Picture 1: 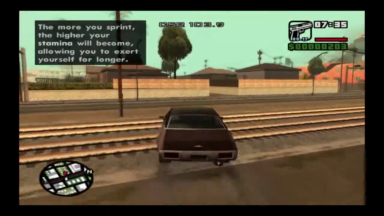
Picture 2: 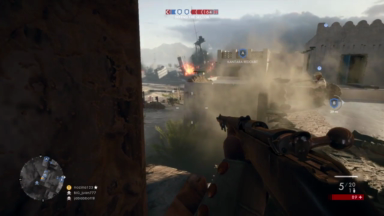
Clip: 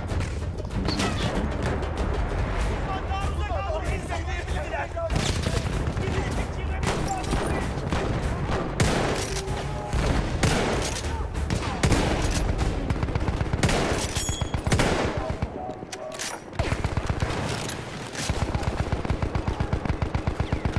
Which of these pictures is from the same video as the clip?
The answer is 2